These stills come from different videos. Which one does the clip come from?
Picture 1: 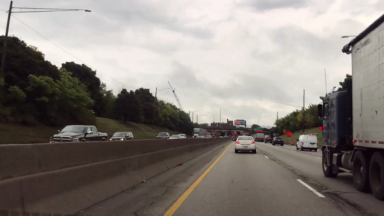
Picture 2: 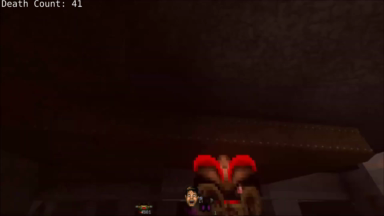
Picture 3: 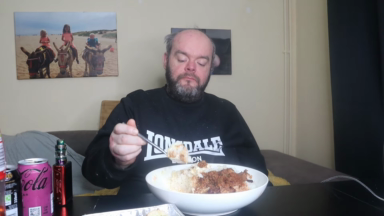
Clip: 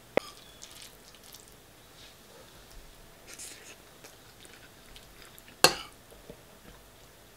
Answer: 3